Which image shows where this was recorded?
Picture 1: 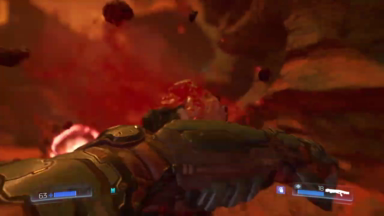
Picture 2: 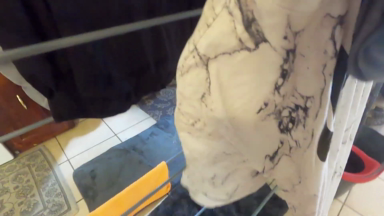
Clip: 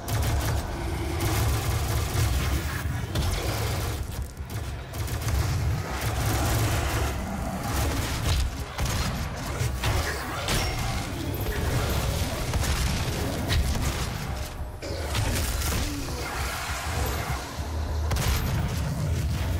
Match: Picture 1